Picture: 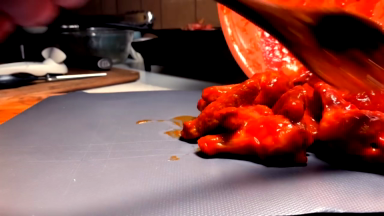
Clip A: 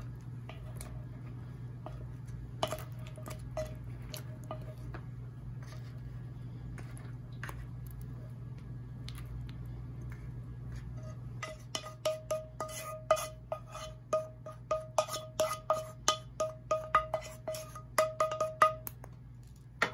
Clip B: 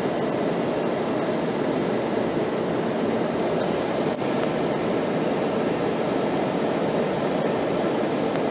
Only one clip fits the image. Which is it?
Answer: A